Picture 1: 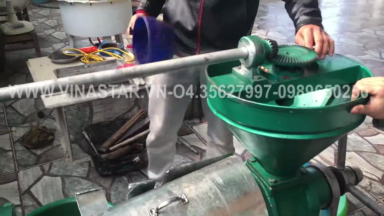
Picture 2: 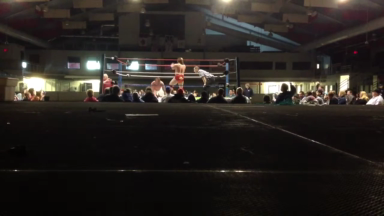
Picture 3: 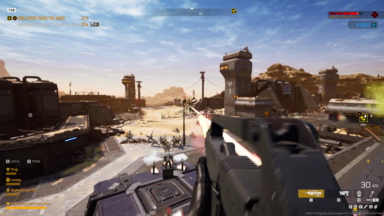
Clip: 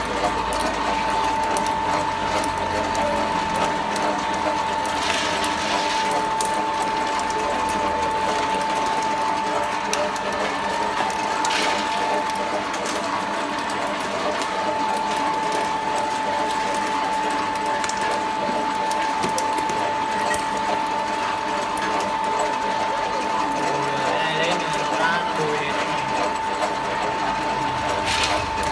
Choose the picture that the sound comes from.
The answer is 1